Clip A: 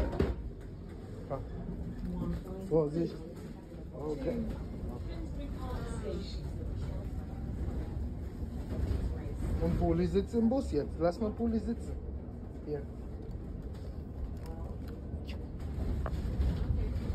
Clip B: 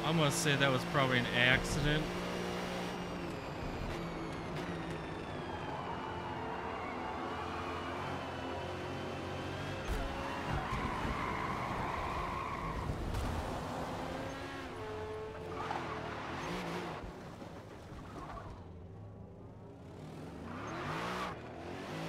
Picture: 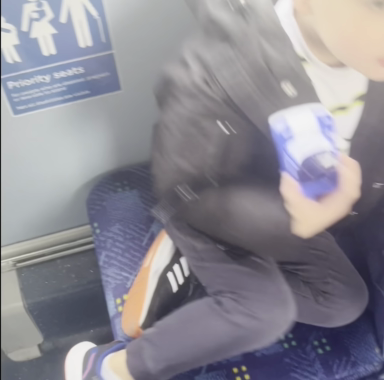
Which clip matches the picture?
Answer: A